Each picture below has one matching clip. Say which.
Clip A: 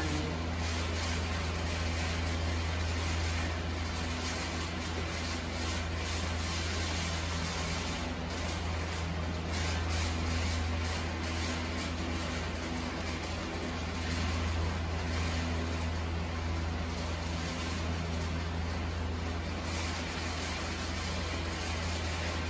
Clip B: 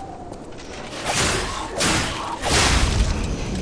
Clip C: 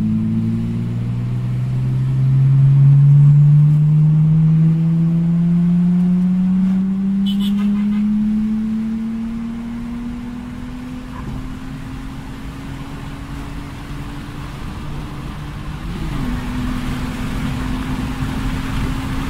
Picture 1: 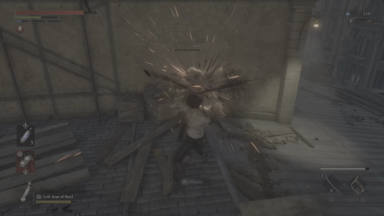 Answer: B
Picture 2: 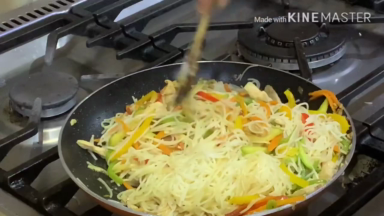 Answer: A